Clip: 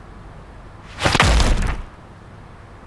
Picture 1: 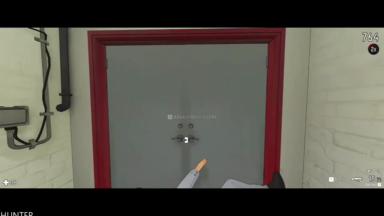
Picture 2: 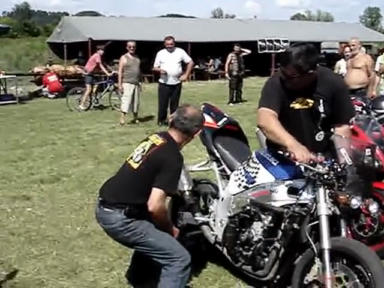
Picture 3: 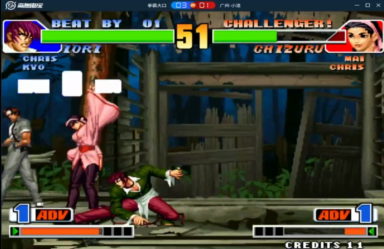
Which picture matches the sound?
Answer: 1